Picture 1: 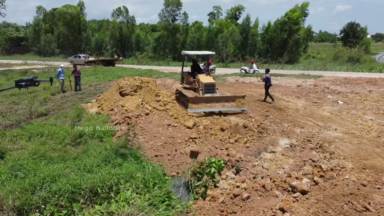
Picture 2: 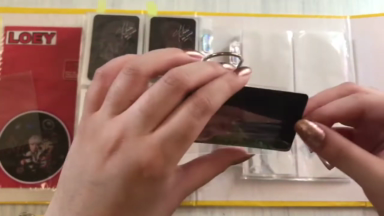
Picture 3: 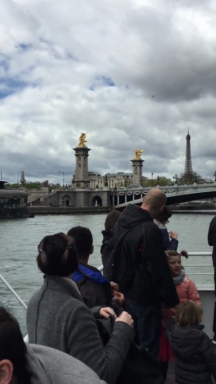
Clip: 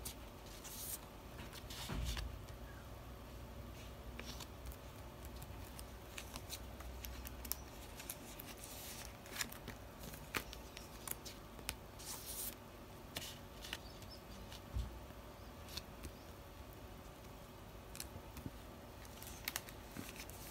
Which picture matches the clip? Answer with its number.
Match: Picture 2